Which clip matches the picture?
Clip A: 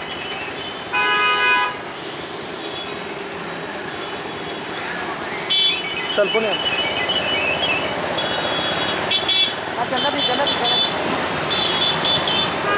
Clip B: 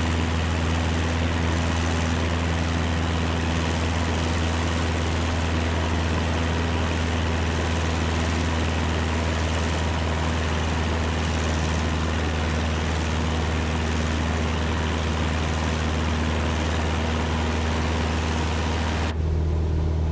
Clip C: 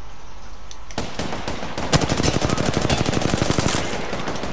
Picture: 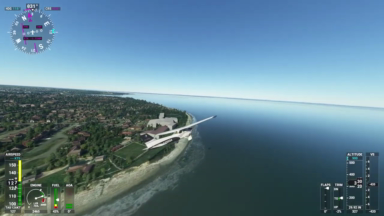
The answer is B